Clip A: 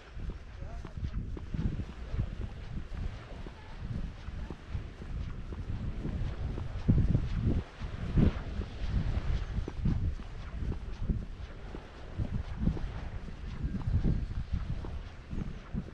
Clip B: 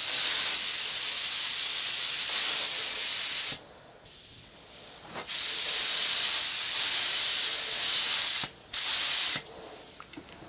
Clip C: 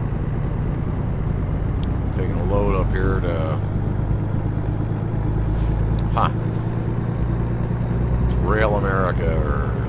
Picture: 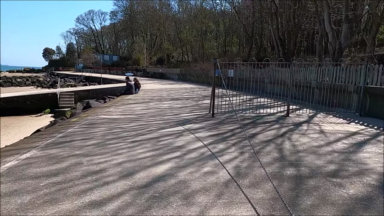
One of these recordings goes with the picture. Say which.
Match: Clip A